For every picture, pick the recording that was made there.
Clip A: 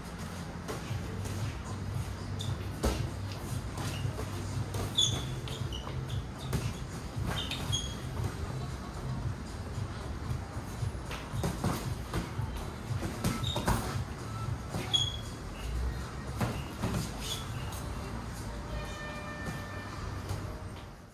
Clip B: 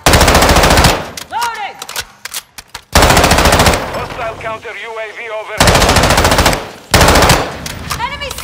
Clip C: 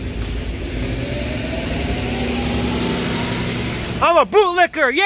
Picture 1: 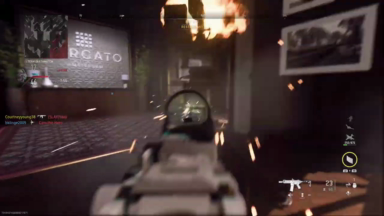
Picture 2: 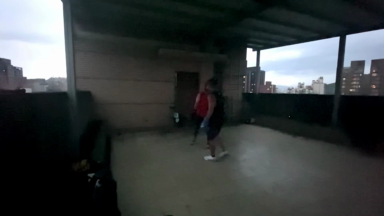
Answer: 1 B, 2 A